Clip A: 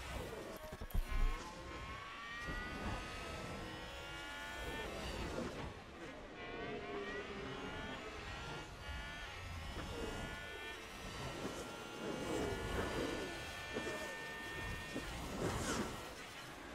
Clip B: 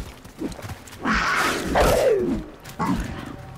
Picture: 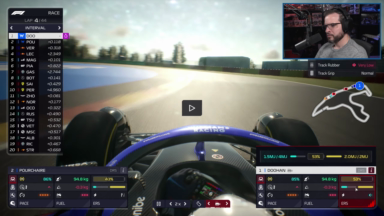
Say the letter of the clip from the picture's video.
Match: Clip A